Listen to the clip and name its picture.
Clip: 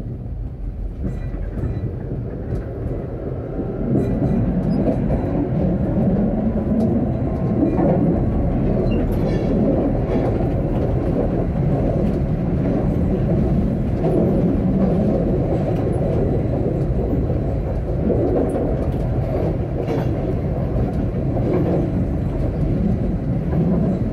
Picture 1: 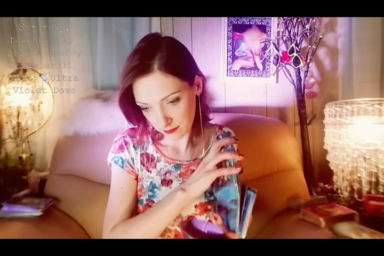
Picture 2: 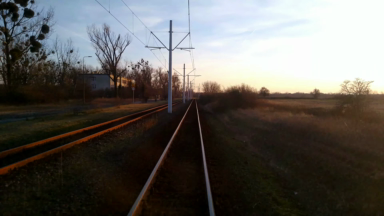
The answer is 2